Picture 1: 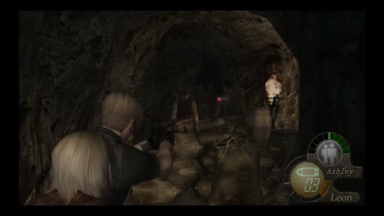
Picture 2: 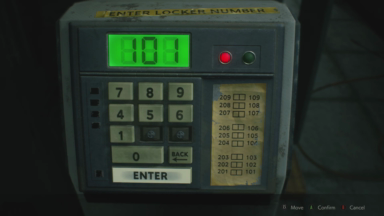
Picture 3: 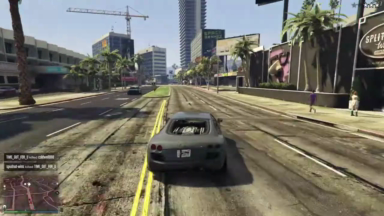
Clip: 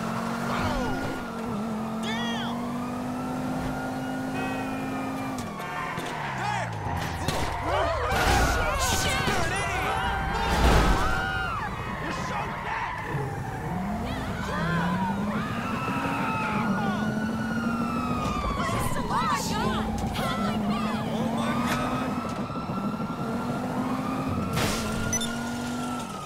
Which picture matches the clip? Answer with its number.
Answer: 3